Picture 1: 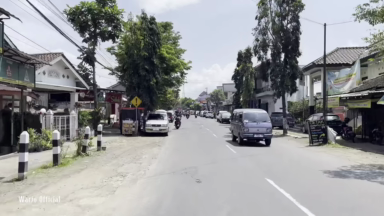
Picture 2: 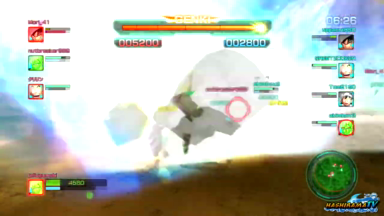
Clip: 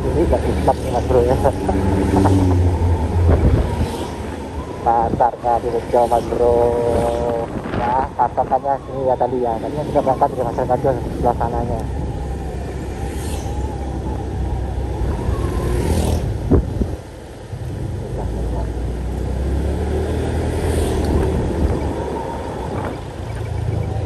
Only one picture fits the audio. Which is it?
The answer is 1